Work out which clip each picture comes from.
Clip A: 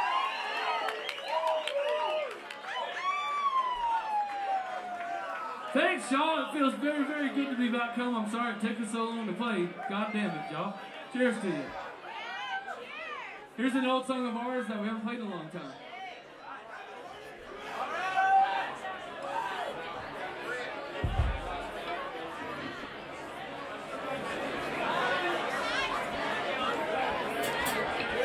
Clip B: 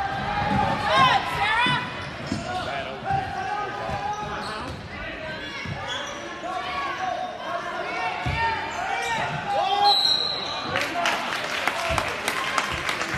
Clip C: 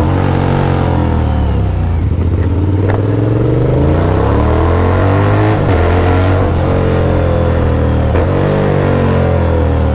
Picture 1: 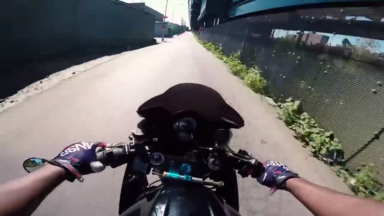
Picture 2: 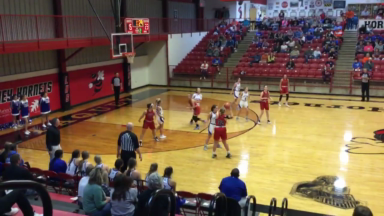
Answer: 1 C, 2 B